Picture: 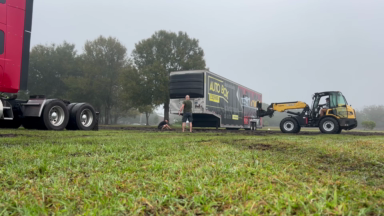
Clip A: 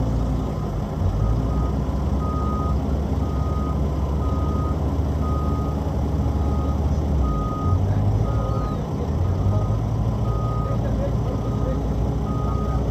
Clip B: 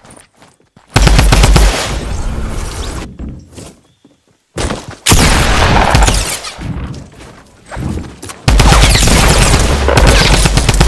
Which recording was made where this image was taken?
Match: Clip A